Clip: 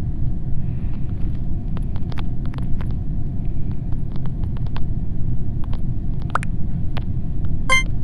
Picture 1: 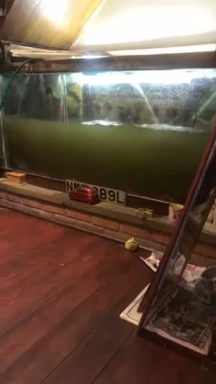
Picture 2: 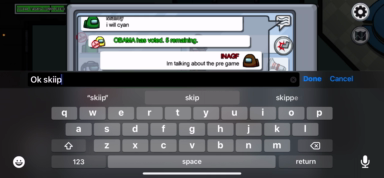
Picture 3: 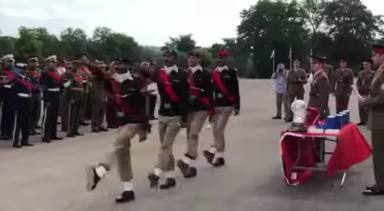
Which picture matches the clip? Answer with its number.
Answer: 2